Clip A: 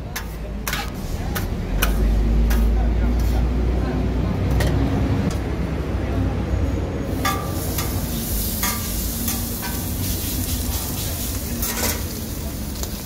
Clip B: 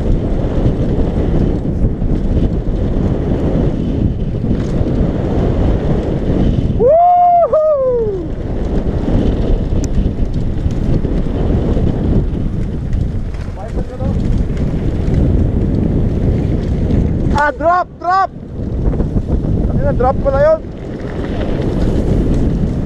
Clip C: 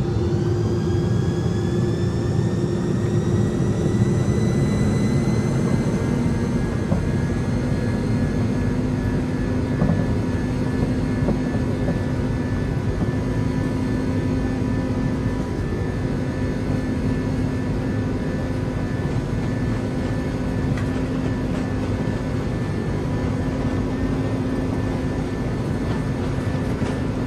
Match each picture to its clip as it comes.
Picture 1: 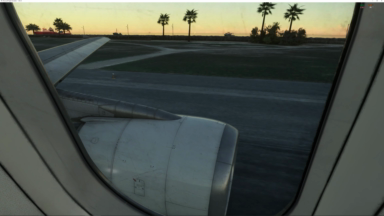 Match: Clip C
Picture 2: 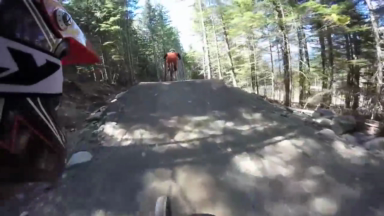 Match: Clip B